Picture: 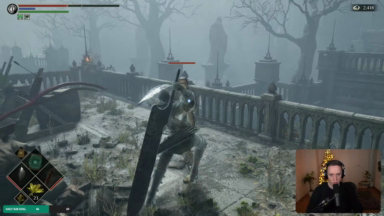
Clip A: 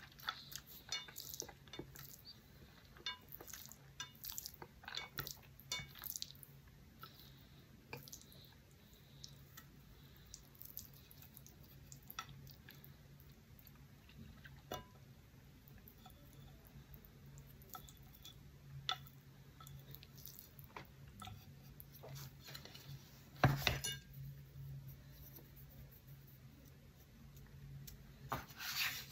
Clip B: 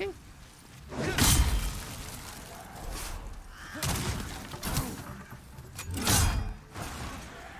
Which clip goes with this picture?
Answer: B